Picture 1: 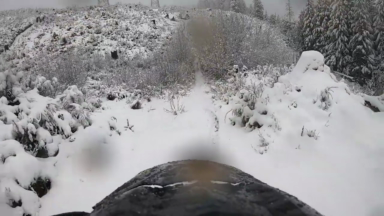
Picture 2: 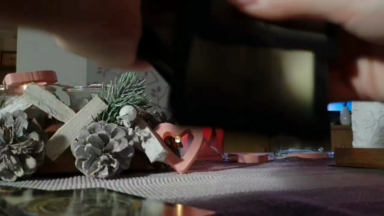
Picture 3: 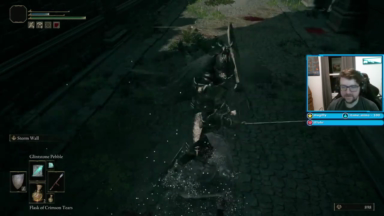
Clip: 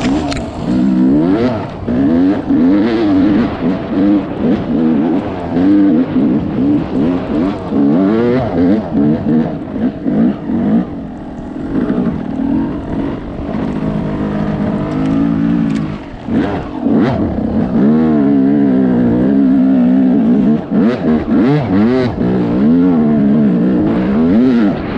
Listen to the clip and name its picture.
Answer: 1